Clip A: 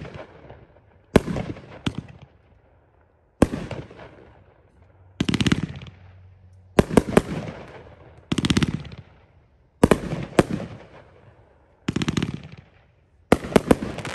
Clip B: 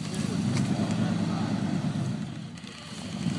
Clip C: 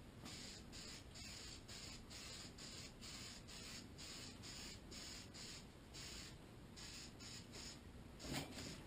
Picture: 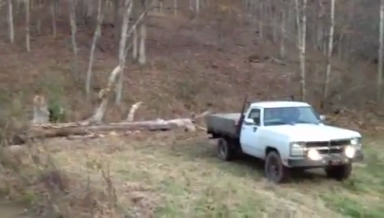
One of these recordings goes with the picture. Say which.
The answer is B